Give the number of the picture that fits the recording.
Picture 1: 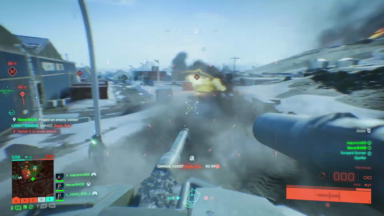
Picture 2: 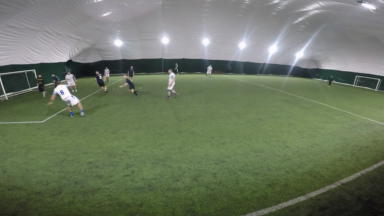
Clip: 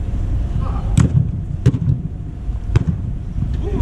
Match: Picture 2